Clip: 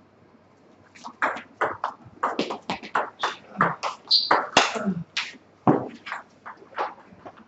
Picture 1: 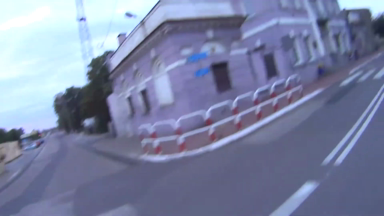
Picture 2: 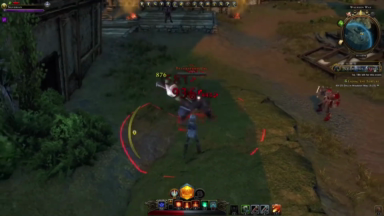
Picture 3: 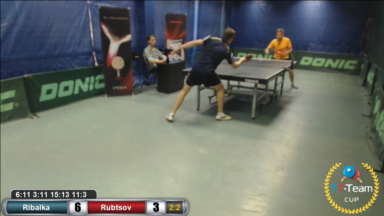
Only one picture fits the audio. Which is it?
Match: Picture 3